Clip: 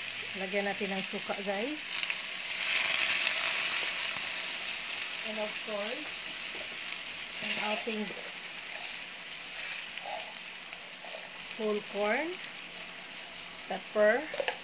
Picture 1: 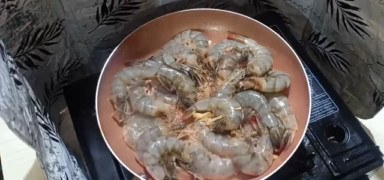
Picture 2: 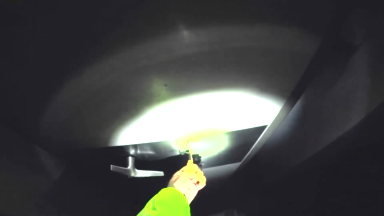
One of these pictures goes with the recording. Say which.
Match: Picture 1